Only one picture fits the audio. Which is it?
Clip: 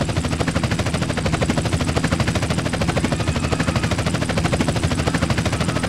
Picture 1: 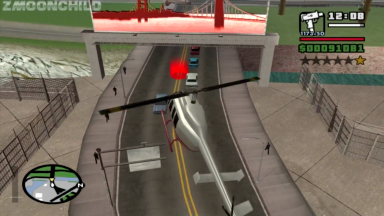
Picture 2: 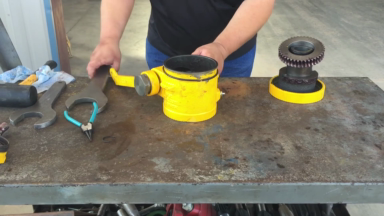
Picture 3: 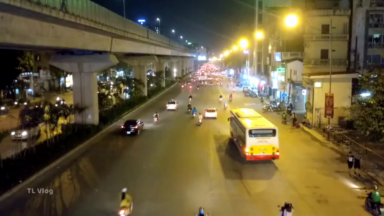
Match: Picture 1